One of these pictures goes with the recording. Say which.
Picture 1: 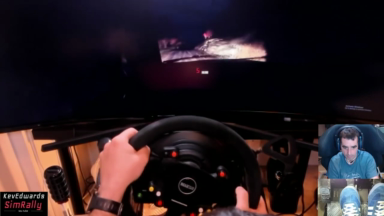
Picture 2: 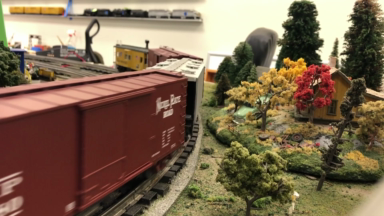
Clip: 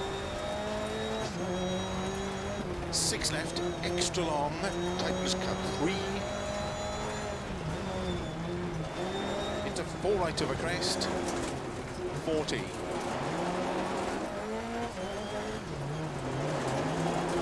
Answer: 1